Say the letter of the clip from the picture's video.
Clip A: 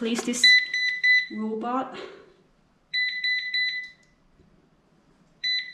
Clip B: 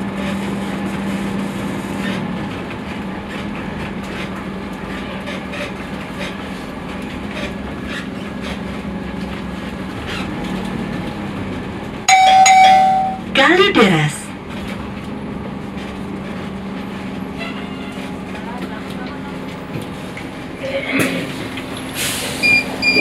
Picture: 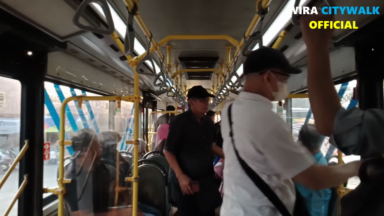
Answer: B